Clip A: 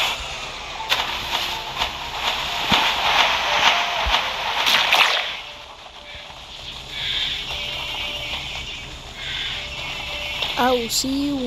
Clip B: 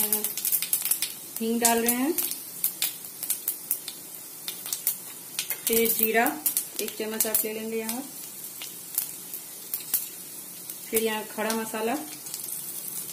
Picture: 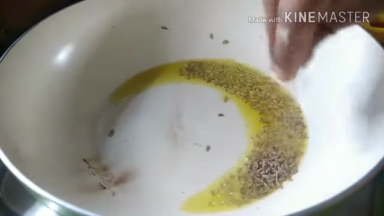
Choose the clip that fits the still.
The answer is B